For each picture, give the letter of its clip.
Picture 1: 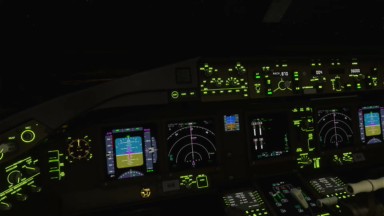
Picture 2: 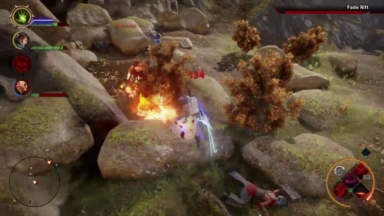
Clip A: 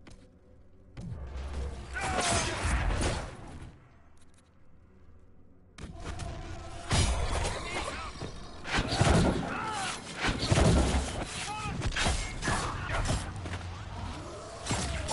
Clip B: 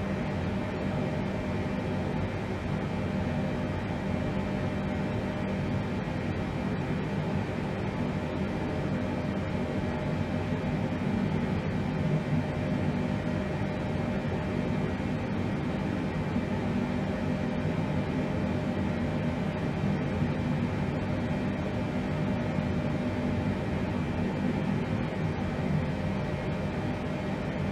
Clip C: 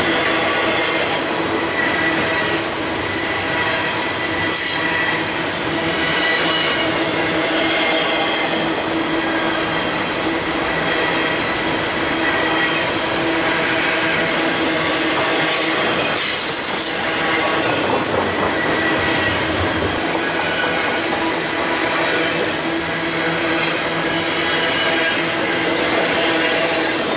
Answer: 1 B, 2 A